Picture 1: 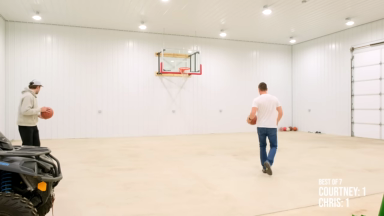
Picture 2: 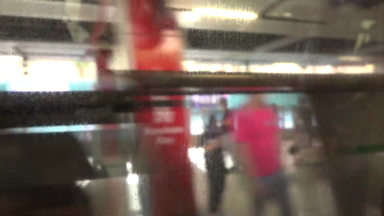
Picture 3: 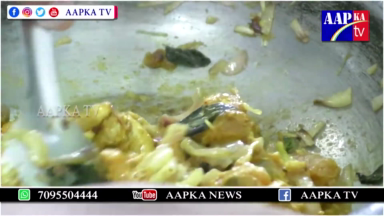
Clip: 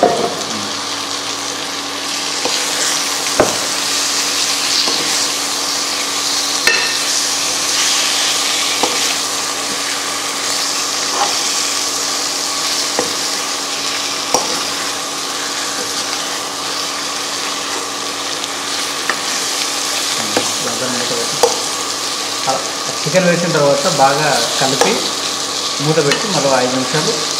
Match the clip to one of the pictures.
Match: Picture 3